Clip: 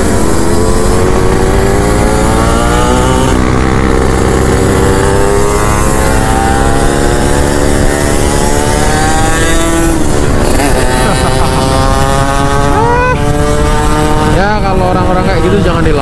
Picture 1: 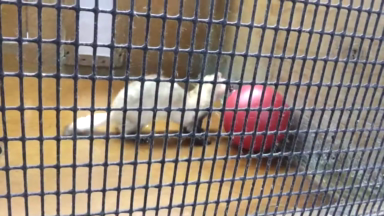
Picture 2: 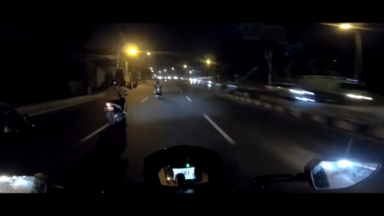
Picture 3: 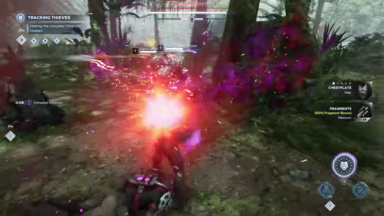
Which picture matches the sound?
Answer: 2